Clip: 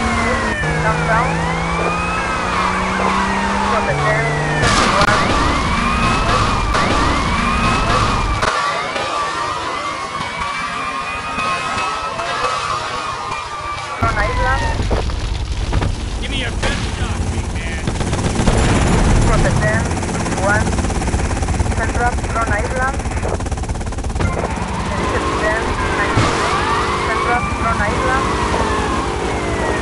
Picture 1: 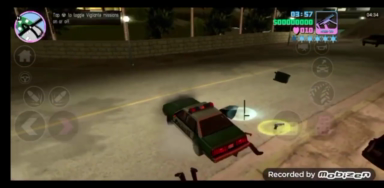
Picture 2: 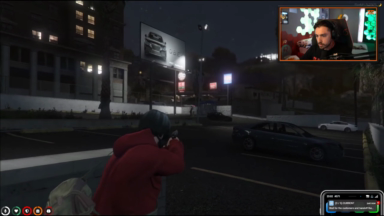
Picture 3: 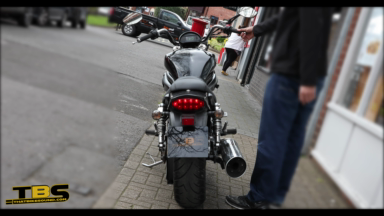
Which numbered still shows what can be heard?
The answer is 1